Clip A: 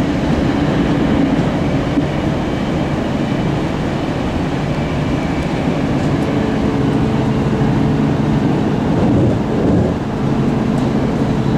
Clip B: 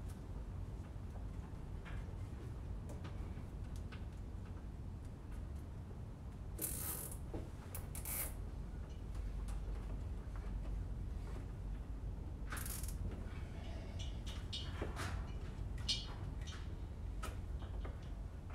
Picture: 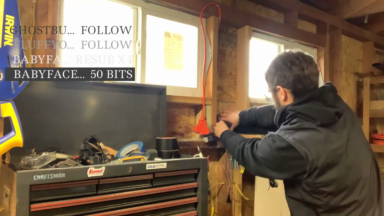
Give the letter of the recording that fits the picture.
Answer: B